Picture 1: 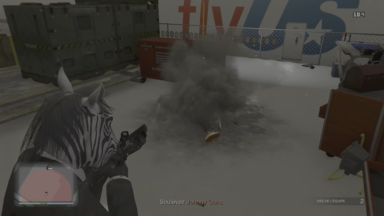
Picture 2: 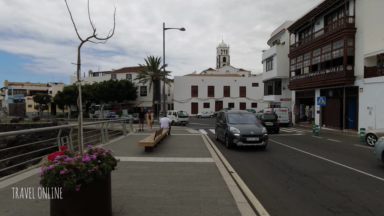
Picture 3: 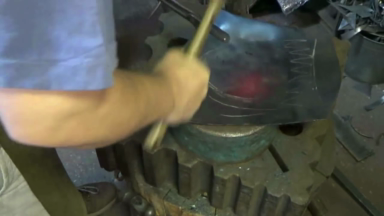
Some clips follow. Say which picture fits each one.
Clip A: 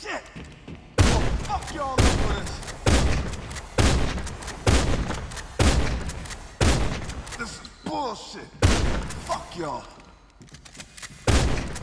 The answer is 1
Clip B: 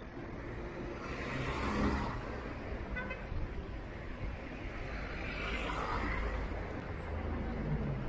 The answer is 2